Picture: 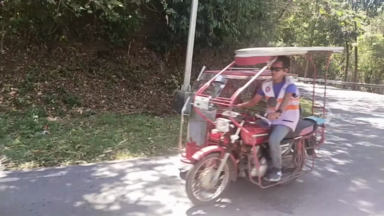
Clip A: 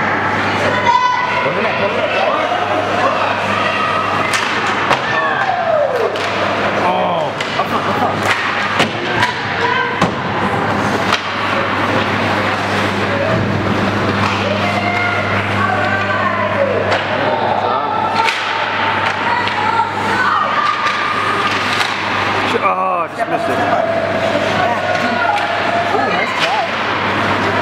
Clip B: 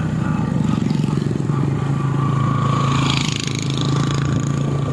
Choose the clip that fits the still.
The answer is B